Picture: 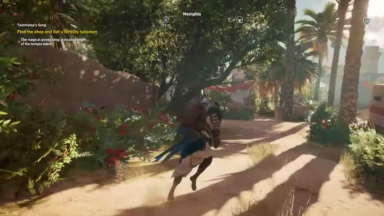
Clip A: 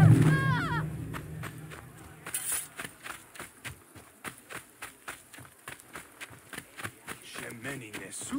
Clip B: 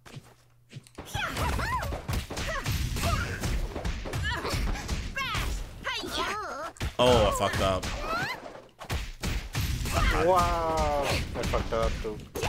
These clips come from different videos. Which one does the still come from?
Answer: A